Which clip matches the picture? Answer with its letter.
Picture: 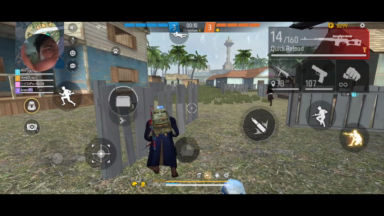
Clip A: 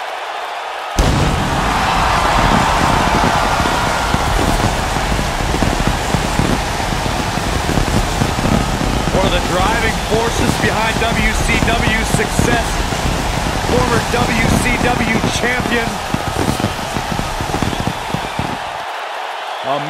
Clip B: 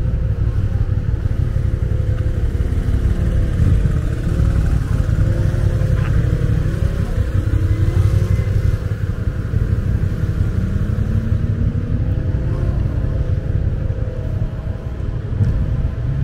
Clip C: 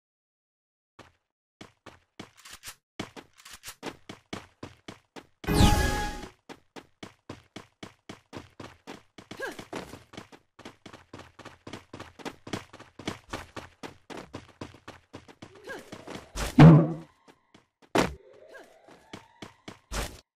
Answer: C